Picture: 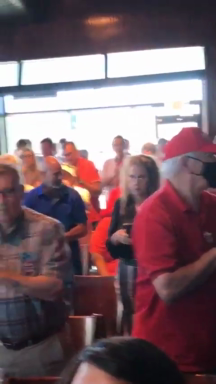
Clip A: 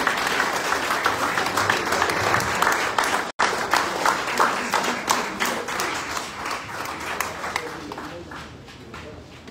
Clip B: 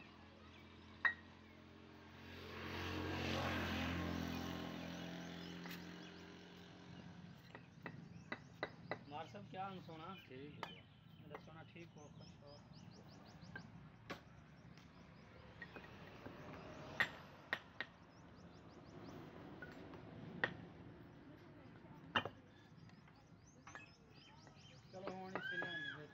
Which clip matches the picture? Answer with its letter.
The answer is A